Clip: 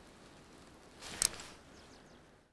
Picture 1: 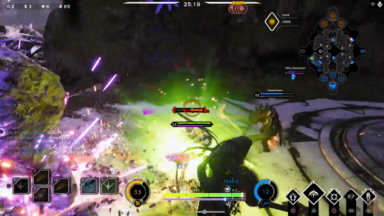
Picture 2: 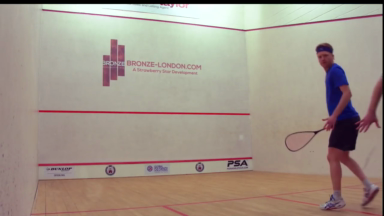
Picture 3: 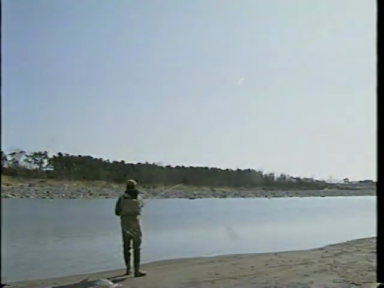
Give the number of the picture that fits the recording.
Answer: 3